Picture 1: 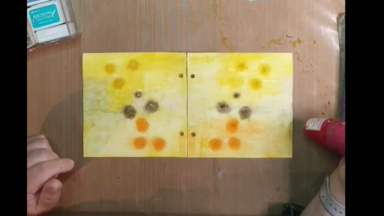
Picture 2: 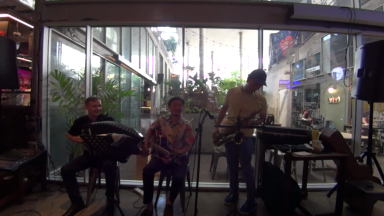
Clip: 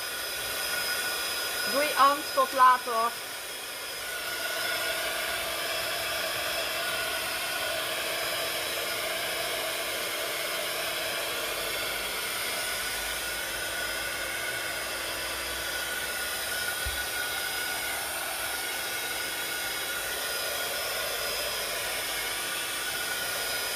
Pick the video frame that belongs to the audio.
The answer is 1